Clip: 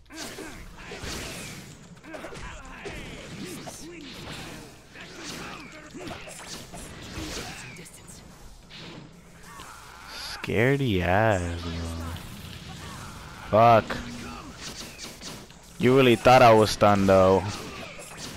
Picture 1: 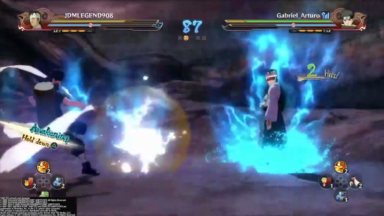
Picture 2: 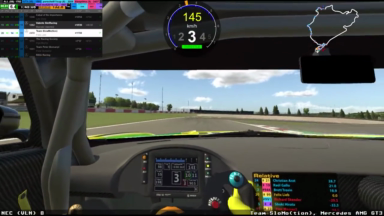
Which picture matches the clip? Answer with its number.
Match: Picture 1